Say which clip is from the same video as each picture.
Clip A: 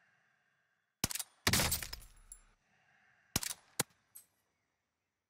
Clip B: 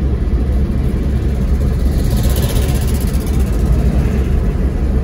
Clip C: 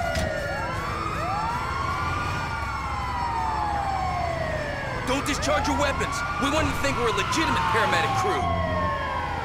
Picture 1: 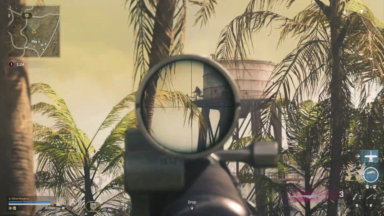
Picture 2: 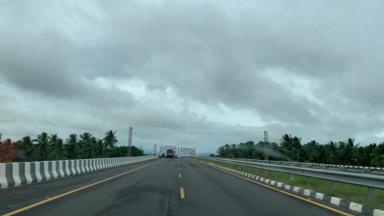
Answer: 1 A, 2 B